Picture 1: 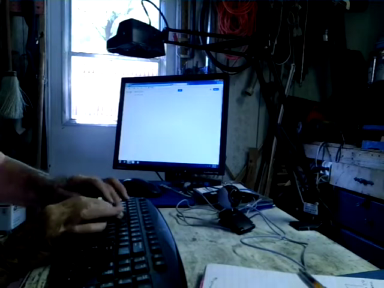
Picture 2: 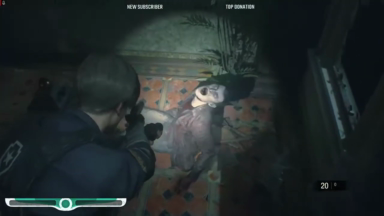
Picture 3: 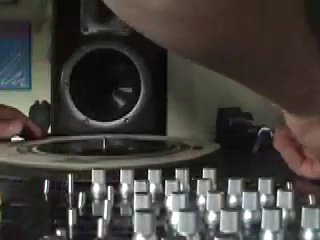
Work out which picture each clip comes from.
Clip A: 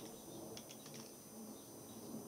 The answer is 1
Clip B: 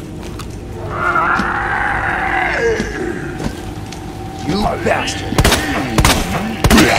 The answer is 2